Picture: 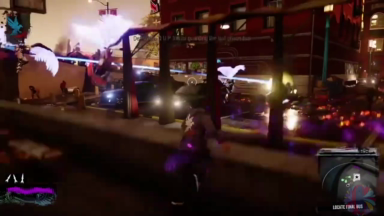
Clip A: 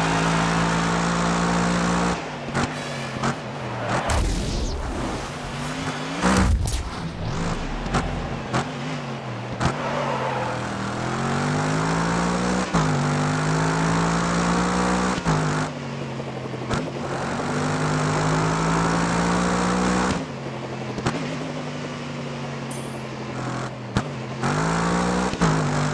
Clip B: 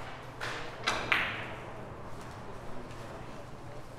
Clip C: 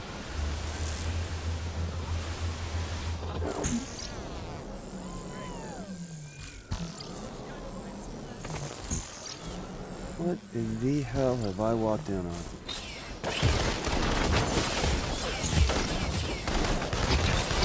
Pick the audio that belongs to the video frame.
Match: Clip C